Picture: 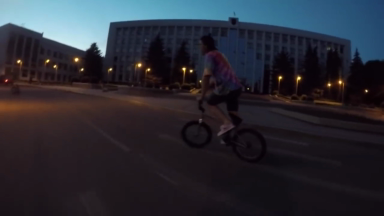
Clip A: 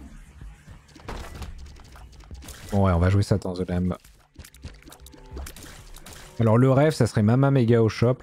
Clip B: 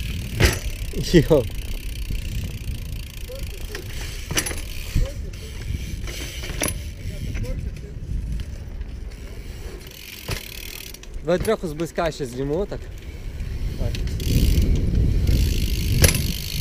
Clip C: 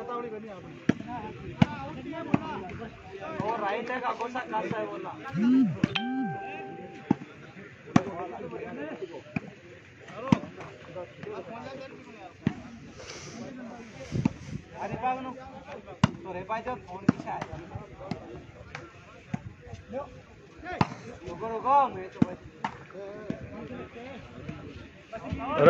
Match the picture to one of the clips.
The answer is B